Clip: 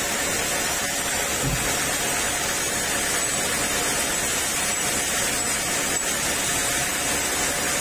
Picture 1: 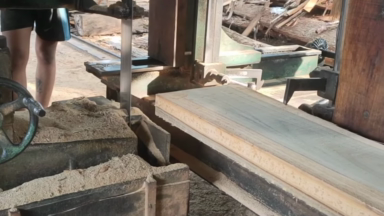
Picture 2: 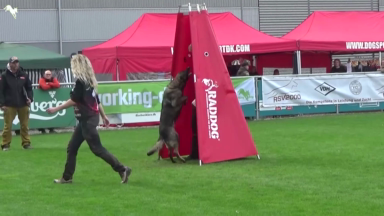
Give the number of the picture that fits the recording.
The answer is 1